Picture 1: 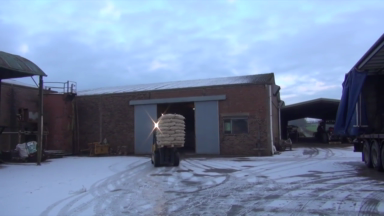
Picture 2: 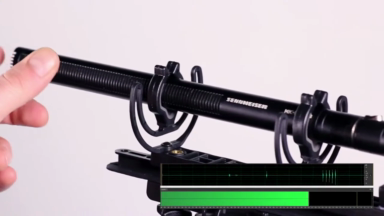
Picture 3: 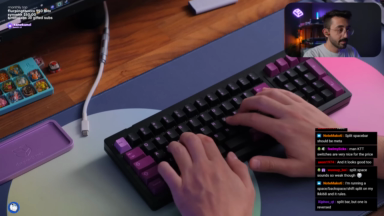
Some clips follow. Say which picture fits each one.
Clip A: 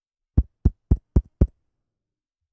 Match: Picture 2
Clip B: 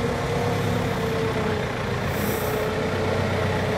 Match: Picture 1